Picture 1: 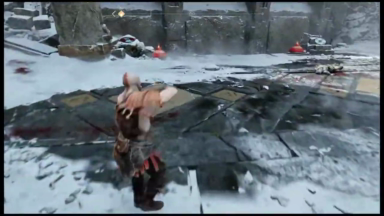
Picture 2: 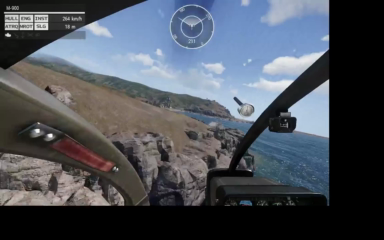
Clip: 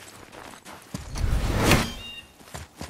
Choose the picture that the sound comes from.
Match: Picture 1